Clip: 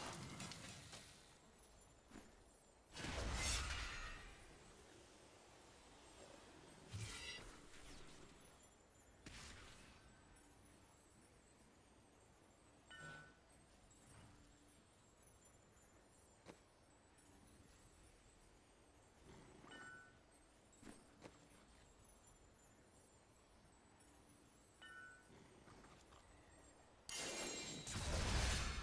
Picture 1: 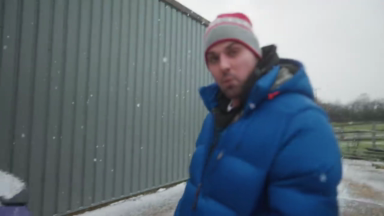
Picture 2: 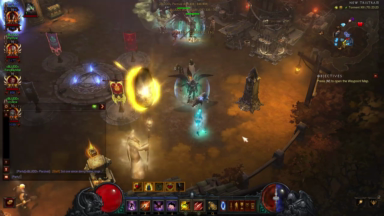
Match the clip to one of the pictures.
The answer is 2